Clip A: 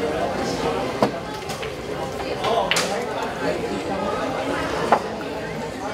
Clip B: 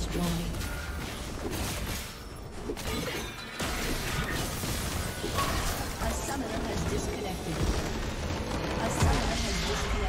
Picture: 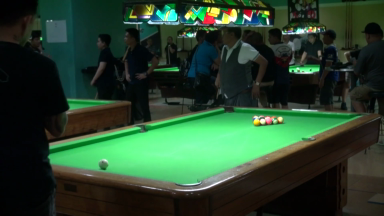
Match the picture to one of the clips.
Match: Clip A